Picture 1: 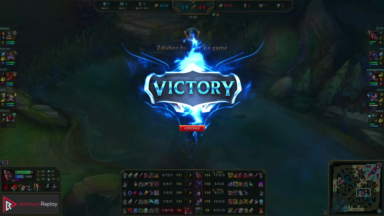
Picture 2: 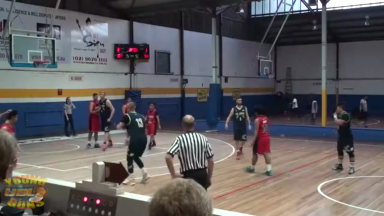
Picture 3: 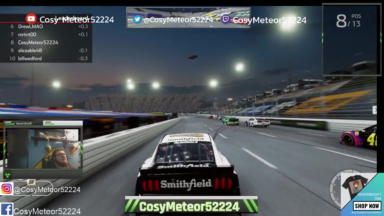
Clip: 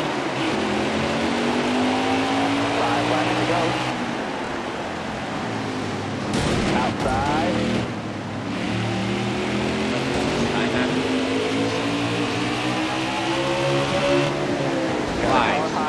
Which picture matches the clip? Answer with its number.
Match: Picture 3